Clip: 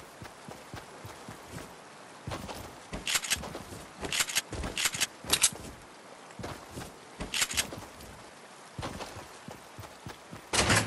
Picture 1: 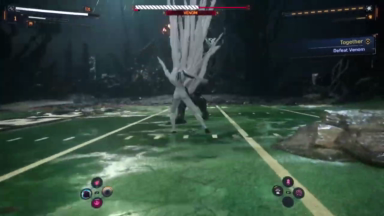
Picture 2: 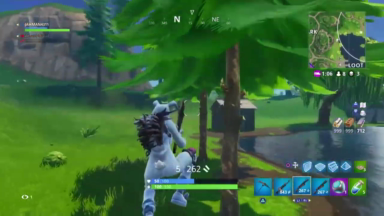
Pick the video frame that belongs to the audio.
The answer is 2